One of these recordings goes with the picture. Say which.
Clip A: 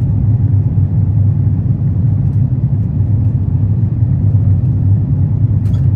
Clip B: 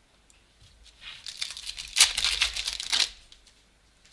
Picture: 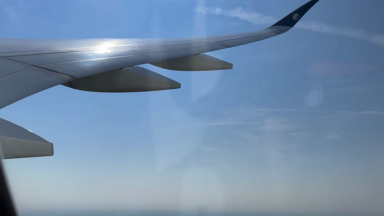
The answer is A